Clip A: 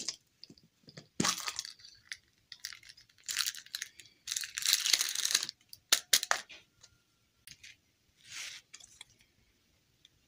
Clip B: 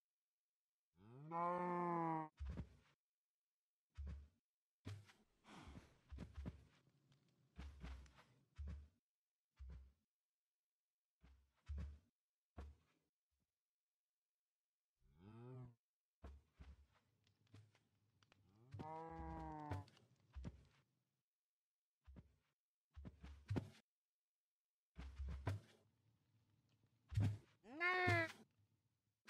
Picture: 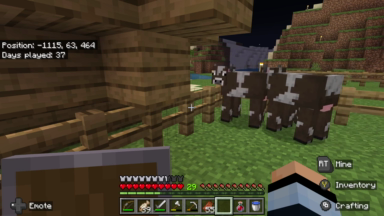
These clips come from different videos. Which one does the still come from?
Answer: B